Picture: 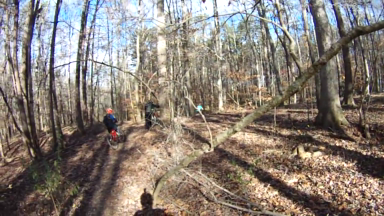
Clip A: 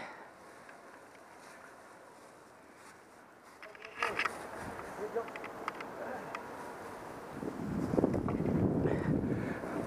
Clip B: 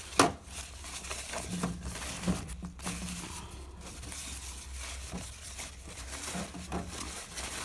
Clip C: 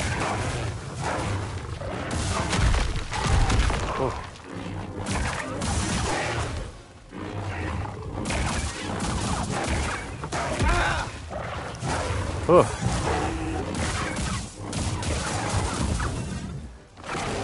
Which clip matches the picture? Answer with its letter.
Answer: A